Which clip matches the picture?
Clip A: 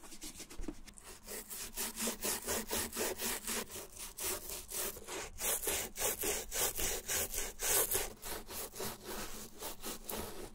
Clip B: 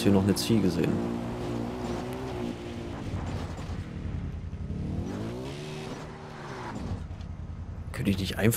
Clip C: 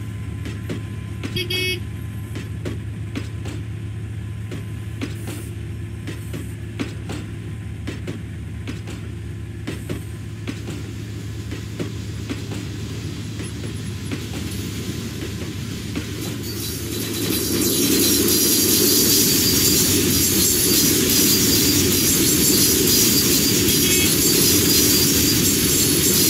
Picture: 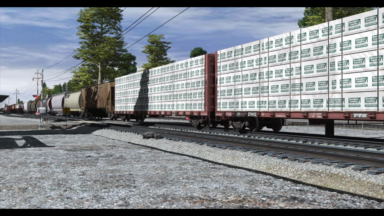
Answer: C